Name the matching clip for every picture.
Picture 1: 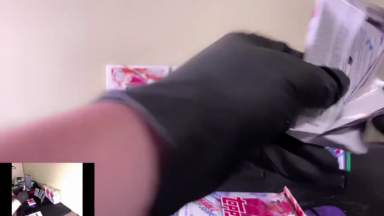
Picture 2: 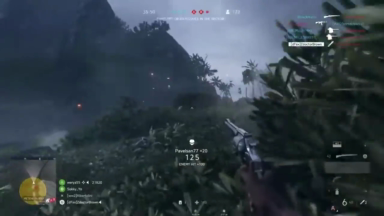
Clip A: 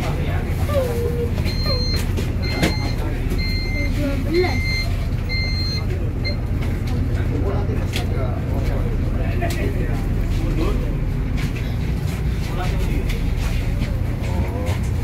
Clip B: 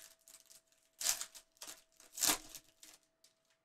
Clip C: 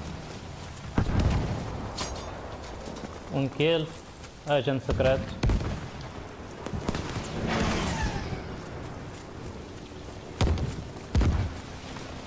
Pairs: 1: B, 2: C